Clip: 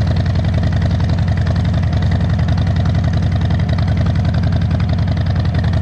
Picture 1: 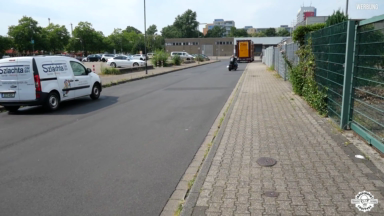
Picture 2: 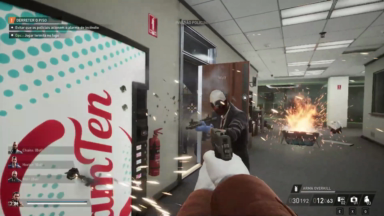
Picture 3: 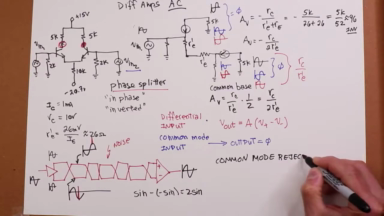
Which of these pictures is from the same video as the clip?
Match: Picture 1